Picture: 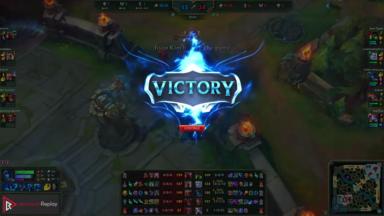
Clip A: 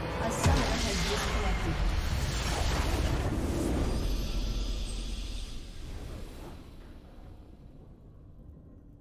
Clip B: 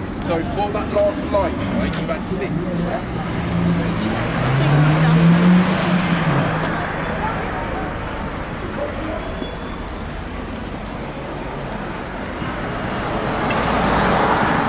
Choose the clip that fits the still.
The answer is A